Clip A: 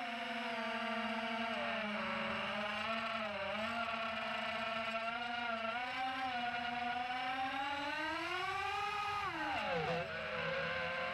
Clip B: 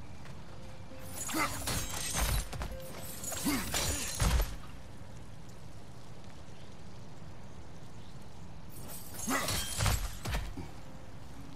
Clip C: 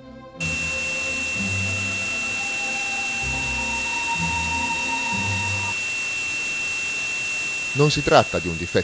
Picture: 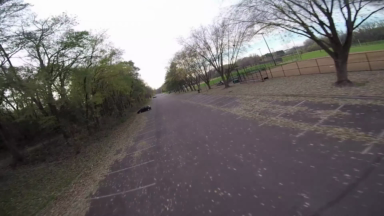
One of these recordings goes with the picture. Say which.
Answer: A